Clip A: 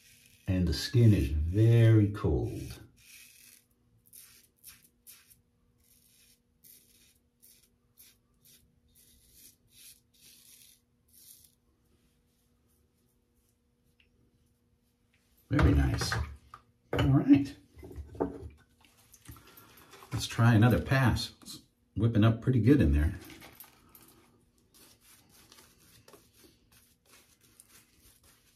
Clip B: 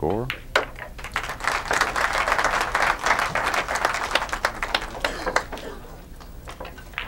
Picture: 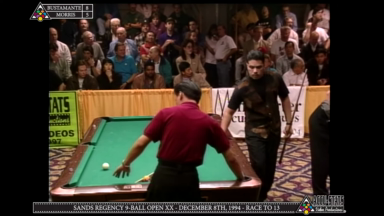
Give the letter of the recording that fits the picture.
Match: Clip B